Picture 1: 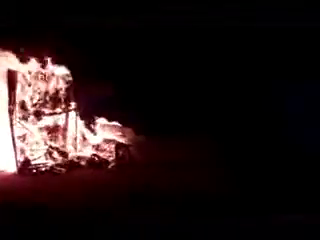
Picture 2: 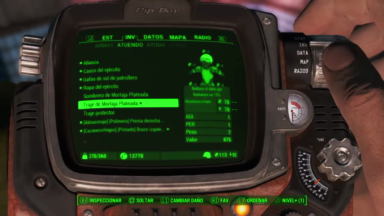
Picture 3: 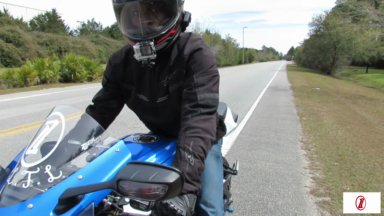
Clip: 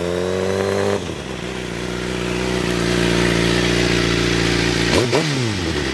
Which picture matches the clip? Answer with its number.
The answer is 3